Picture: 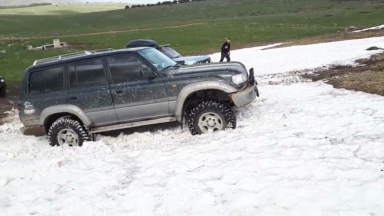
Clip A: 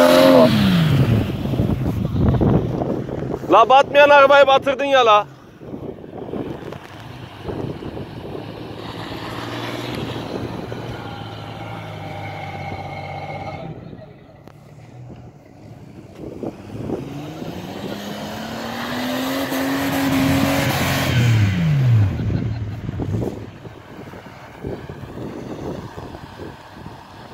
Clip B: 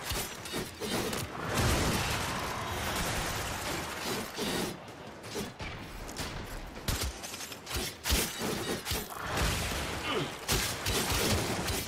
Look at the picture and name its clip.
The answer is A